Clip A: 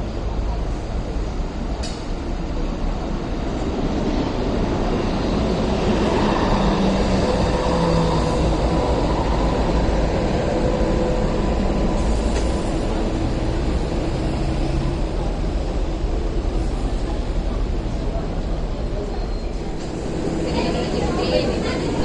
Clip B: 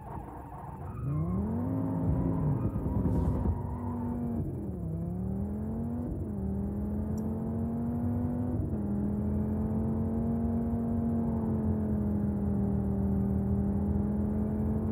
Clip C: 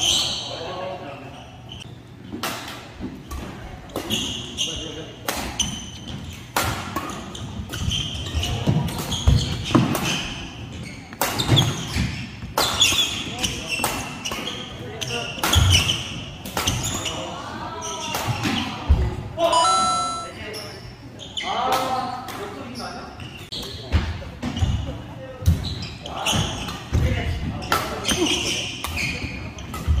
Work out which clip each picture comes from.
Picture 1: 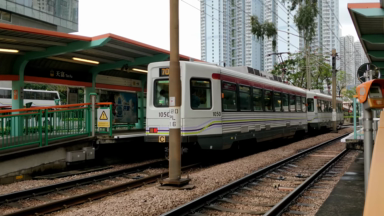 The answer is A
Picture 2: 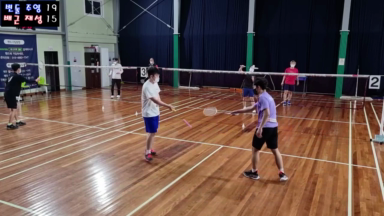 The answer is C